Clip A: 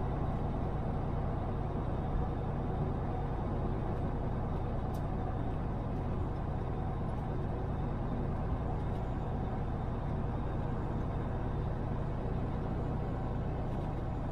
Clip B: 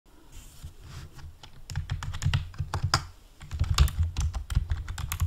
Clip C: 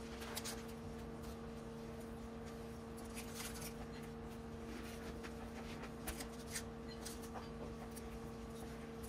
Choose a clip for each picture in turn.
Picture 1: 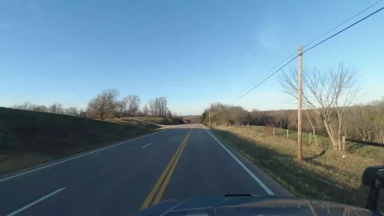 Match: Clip A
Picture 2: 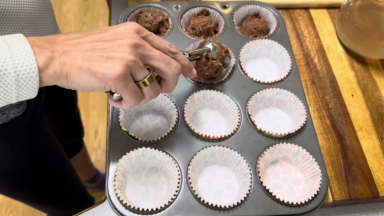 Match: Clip C